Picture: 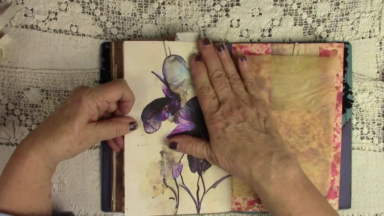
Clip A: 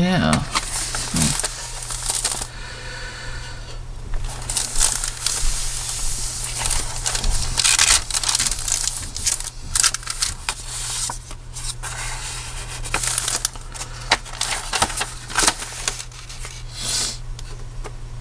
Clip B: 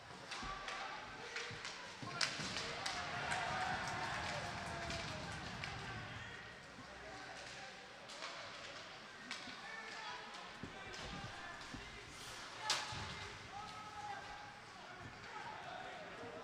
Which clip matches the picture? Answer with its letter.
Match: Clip A